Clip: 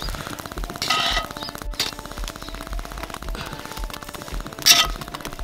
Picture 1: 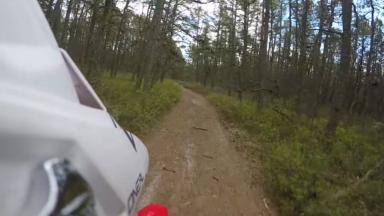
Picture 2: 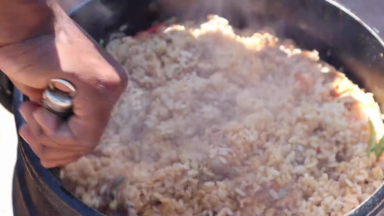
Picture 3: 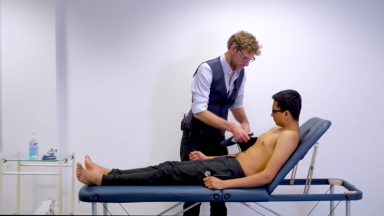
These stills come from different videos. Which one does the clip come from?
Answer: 2